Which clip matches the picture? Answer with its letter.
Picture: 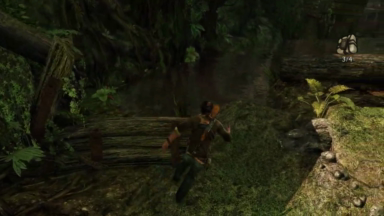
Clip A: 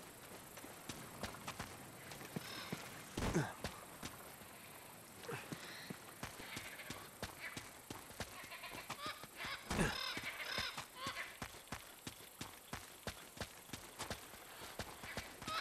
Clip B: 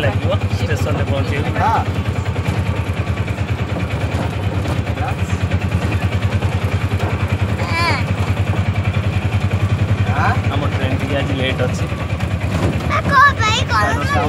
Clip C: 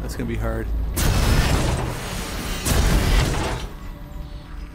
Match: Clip A